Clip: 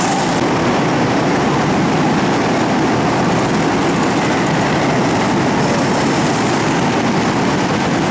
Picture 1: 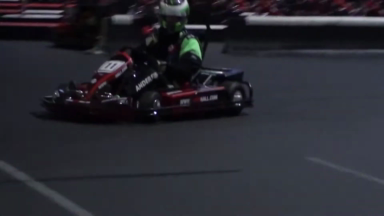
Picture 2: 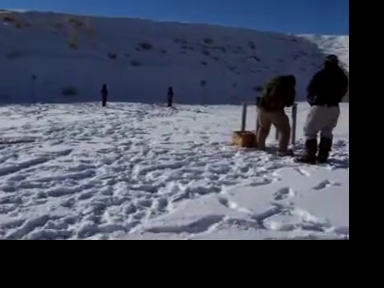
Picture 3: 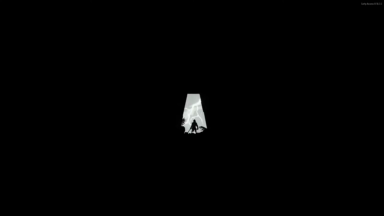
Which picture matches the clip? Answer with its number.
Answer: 1